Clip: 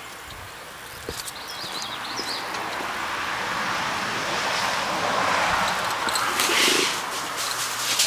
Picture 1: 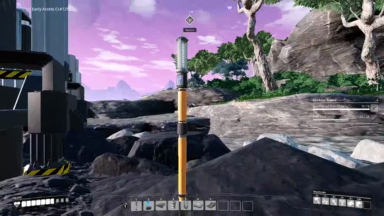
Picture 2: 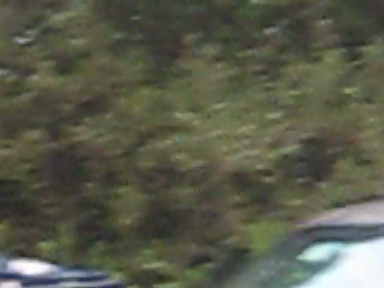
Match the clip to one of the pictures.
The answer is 2